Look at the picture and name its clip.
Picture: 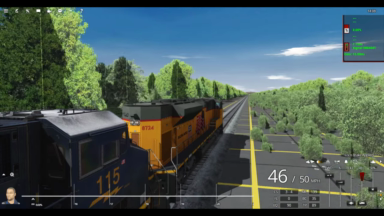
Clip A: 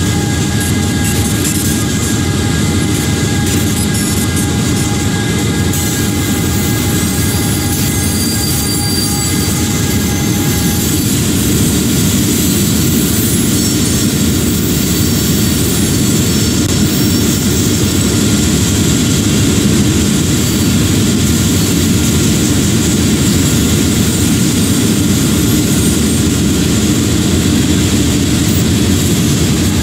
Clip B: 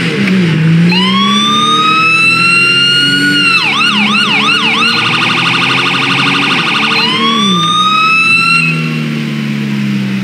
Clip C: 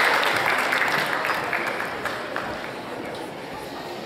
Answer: A